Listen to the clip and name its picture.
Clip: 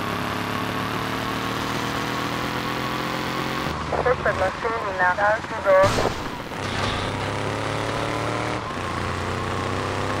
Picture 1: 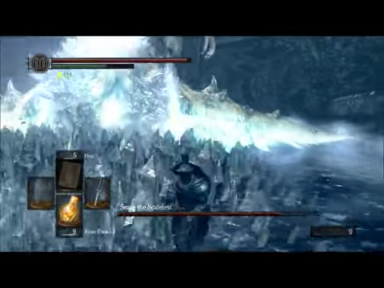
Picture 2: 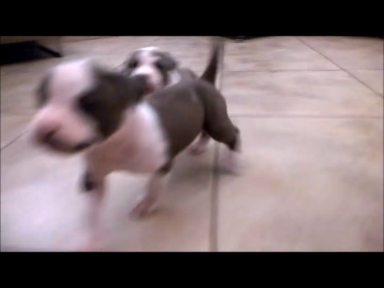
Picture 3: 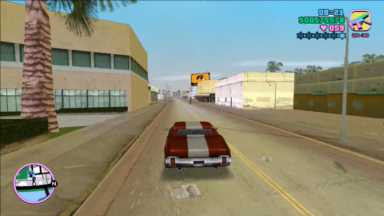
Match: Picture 3